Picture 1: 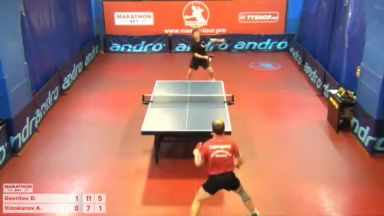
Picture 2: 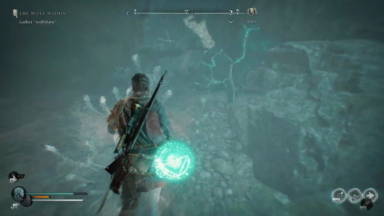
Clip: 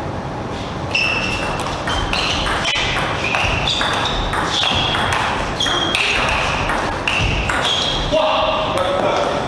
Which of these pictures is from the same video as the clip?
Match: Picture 1